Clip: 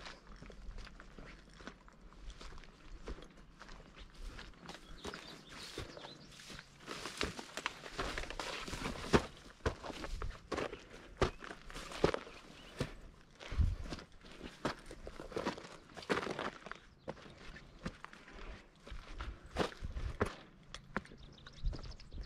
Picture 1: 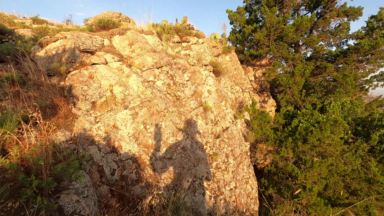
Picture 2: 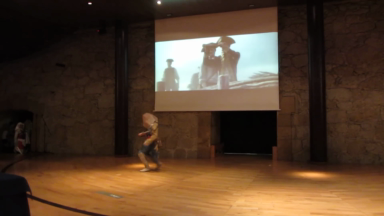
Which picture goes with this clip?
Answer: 1